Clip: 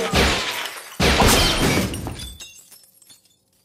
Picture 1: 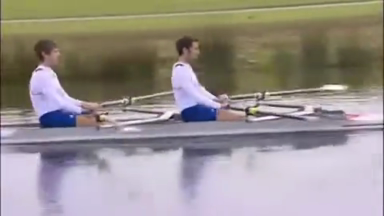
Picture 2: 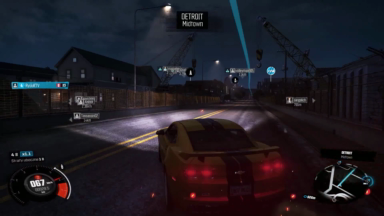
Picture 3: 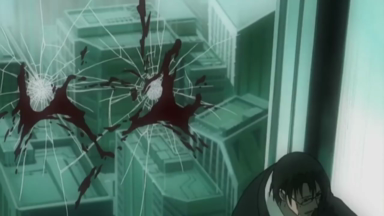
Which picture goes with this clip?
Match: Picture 3